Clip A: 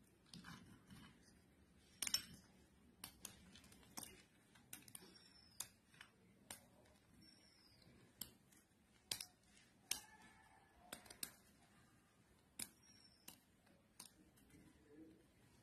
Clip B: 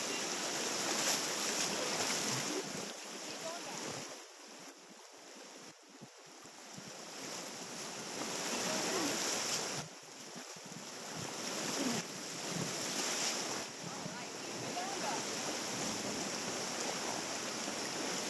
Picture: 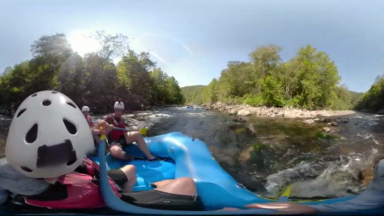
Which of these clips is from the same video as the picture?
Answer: B